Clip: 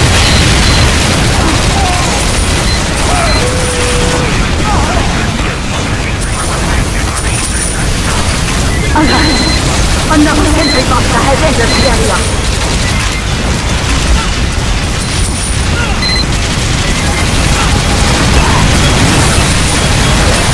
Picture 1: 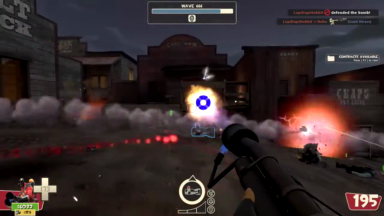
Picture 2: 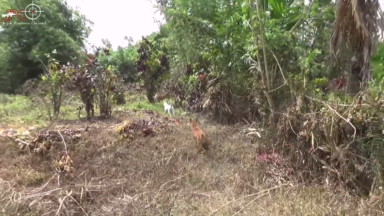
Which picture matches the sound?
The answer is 1